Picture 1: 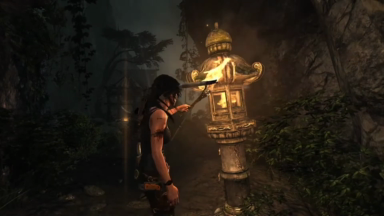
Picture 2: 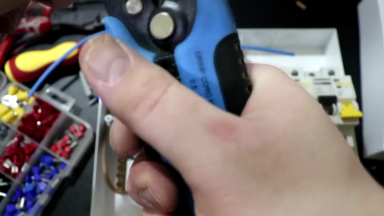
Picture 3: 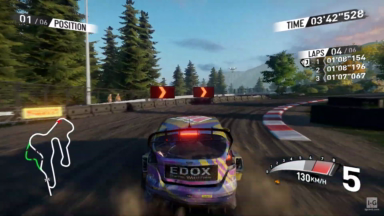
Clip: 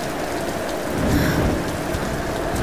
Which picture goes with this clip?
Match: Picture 1